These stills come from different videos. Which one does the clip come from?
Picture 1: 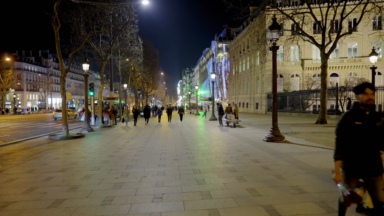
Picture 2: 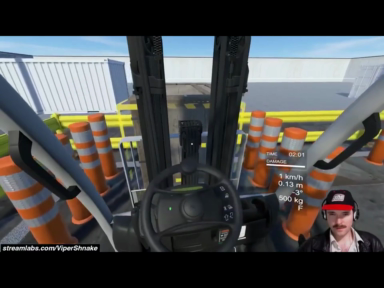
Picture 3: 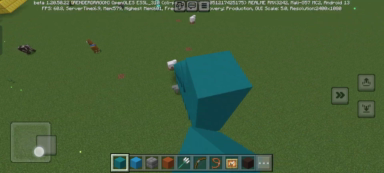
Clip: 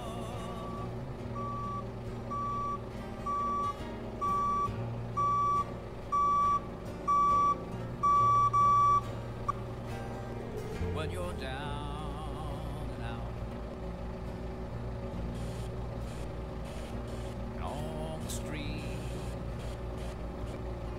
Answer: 2